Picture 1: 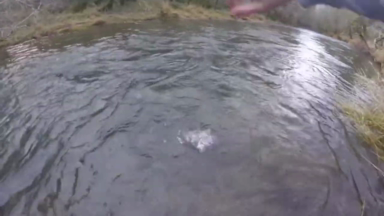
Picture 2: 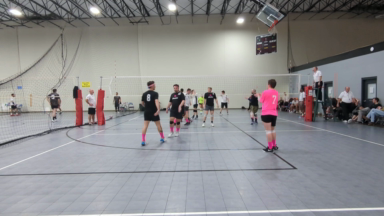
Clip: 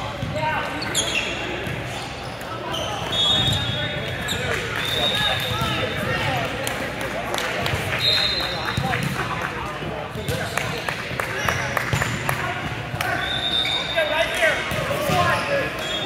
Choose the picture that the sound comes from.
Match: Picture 2